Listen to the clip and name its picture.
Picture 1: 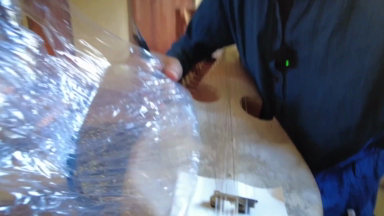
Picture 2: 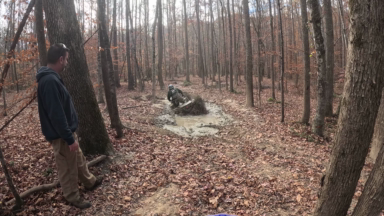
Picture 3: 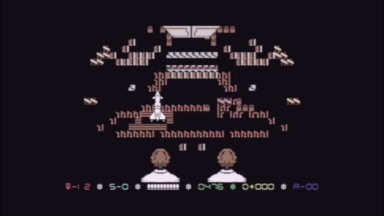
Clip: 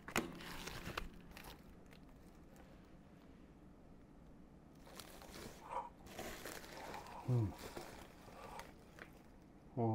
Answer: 1